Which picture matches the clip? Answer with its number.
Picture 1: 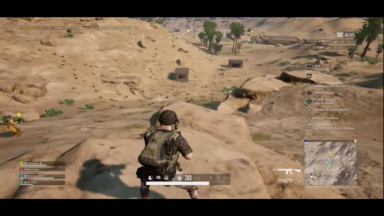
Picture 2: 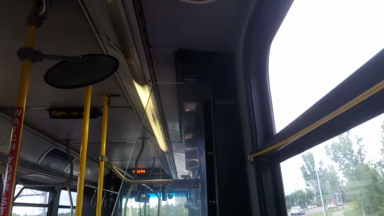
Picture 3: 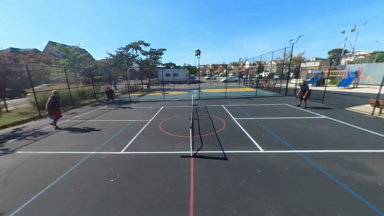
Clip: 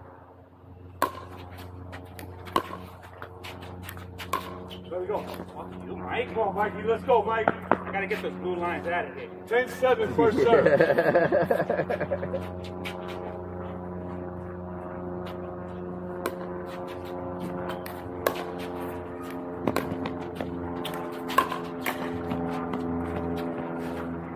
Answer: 3